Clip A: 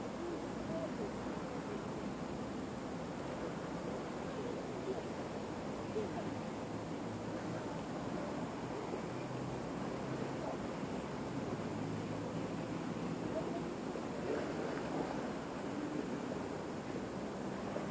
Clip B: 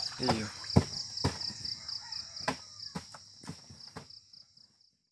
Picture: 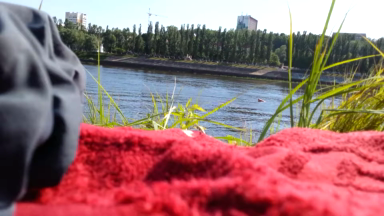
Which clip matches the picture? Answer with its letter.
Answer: A